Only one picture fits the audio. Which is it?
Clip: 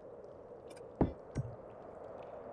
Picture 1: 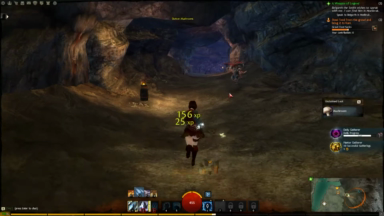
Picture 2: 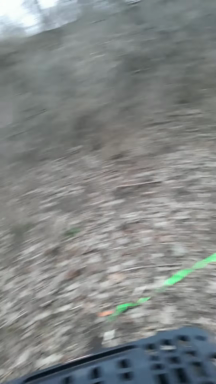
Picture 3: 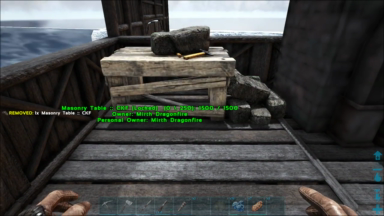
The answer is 3